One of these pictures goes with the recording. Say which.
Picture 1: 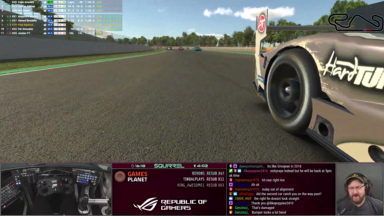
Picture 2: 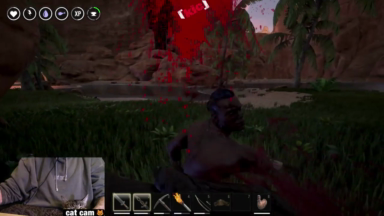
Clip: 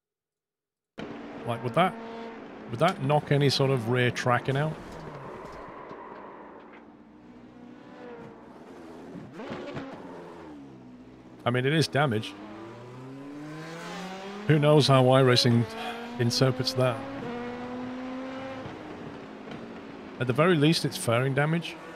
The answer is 1